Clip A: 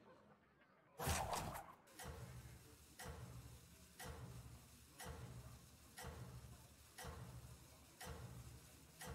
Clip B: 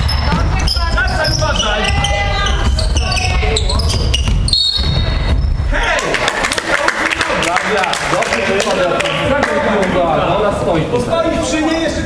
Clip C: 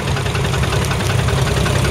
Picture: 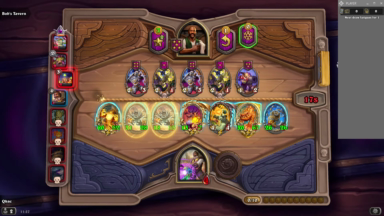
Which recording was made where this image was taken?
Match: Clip A